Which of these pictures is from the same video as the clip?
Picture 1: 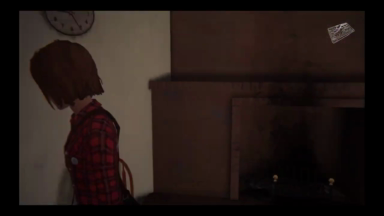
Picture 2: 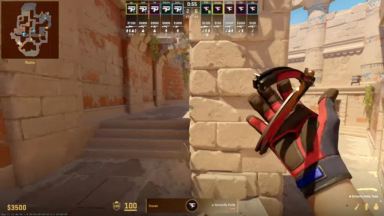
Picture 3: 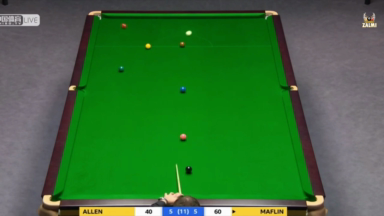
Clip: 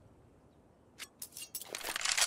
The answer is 2